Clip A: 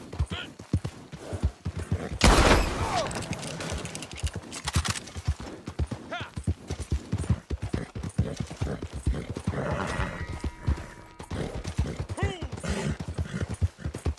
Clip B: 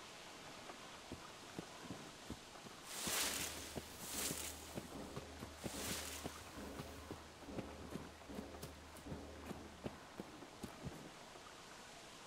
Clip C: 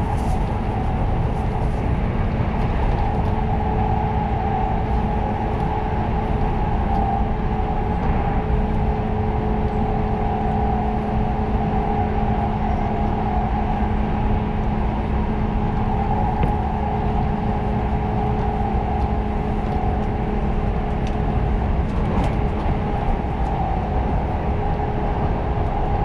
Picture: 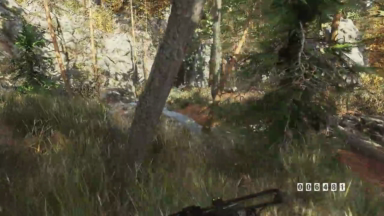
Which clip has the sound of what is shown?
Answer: B